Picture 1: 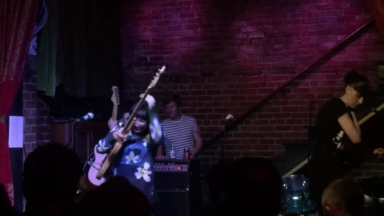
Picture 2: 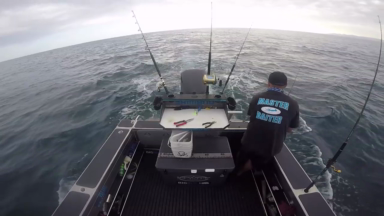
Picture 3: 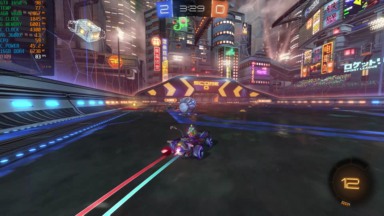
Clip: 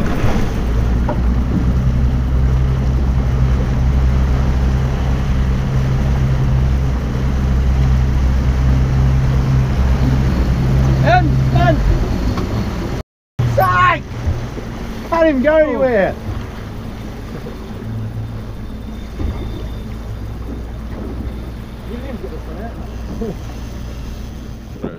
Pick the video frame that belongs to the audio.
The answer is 2